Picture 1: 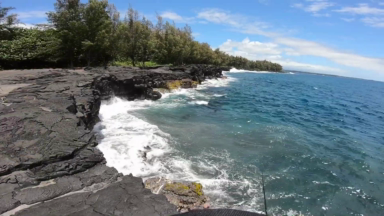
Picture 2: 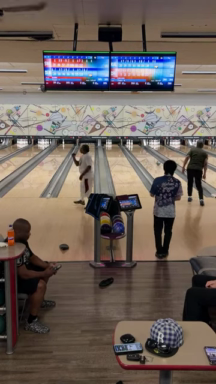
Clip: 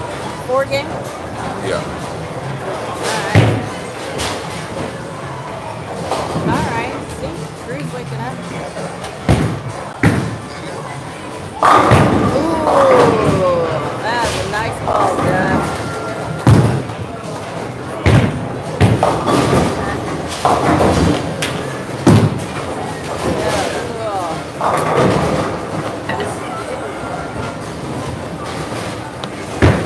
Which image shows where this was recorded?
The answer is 2